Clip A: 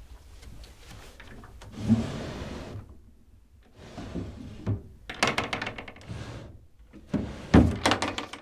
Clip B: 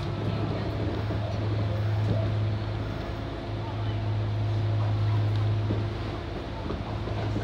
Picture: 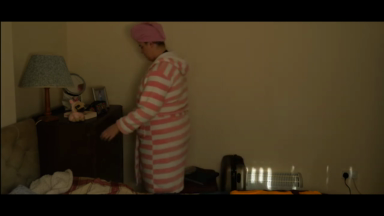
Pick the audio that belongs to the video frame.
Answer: A